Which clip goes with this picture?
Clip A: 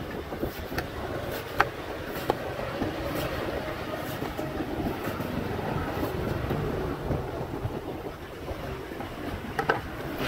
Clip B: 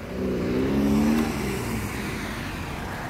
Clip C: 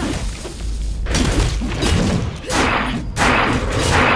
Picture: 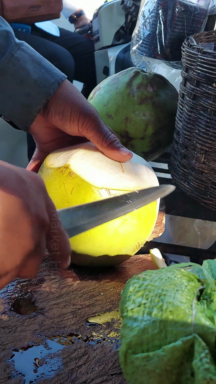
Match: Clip A